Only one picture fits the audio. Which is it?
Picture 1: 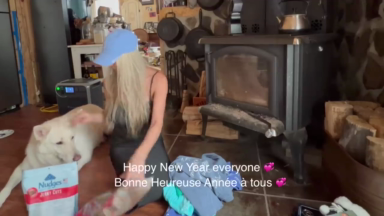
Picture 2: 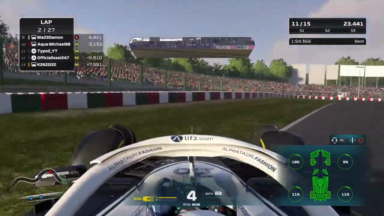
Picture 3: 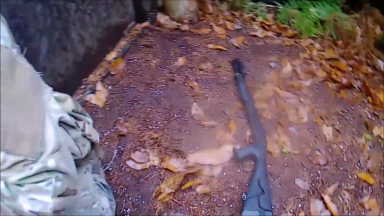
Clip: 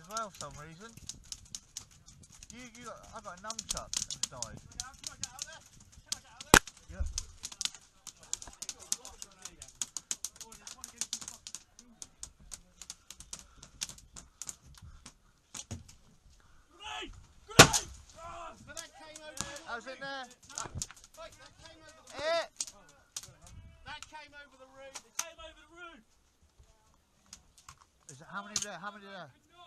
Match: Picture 3